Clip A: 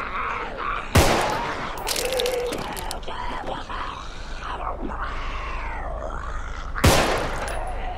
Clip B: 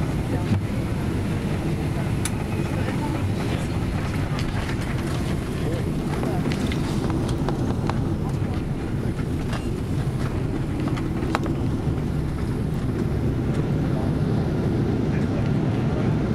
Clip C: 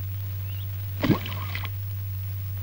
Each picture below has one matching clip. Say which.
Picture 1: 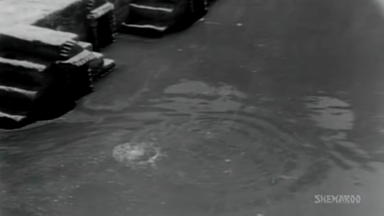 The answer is C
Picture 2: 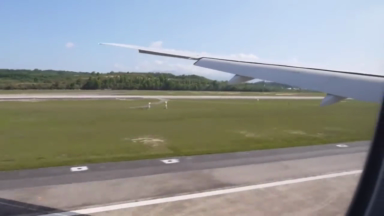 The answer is B